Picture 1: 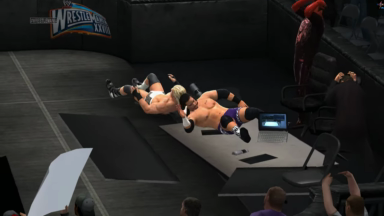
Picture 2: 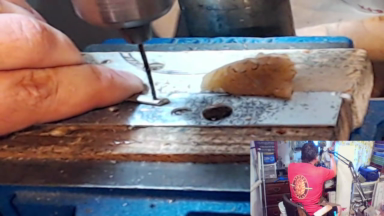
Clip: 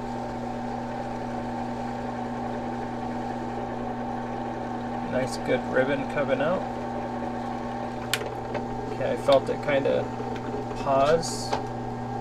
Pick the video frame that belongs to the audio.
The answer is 2